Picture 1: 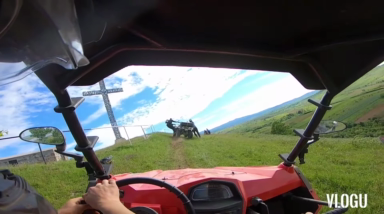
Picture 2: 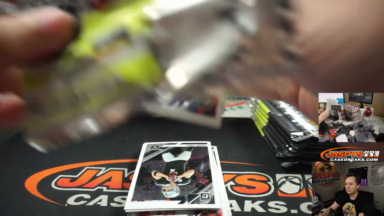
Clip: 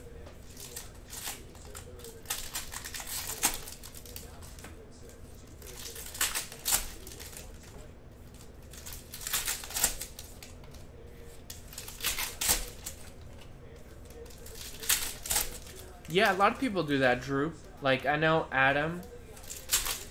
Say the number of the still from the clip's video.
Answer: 2